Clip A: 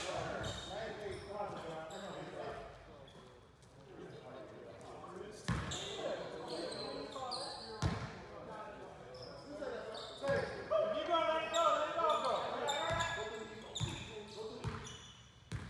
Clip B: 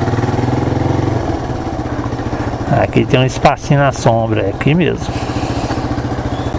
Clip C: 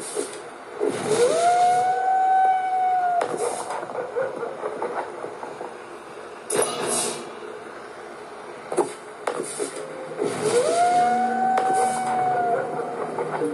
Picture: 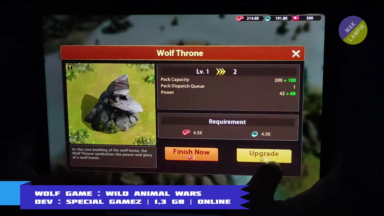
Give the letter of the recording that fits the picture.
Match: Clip C